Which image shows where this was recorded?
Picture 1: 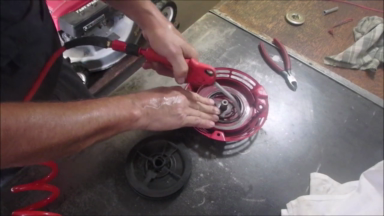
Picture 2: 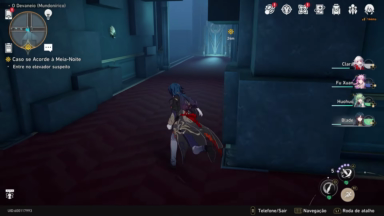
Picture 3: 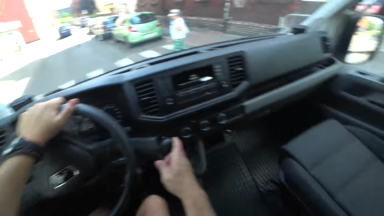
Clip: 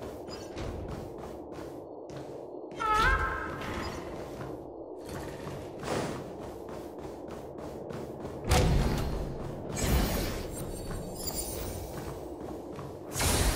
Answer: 2